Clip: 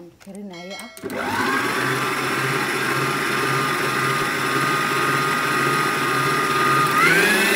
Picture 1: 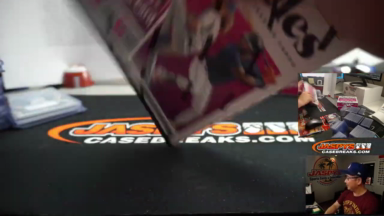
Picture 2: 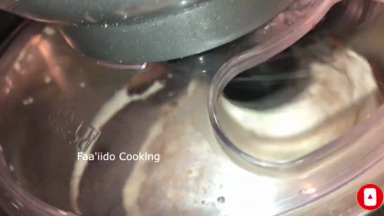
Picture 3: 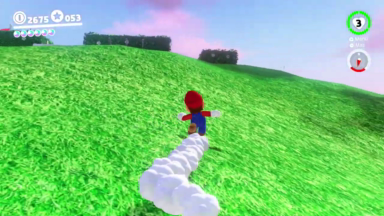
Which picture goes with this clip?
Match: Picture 2